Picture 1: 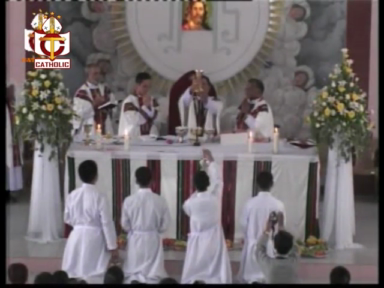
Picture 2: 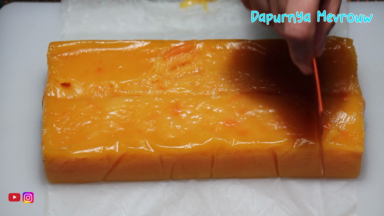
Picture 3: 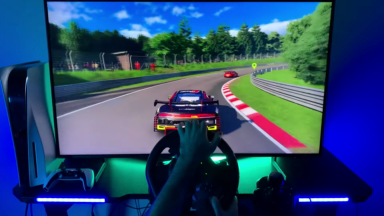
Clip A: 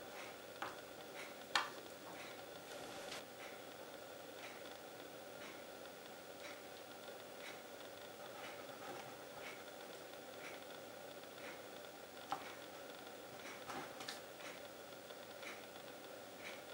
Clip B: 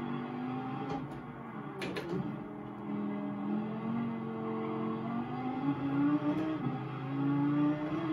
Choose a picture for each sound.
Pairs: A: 2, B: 3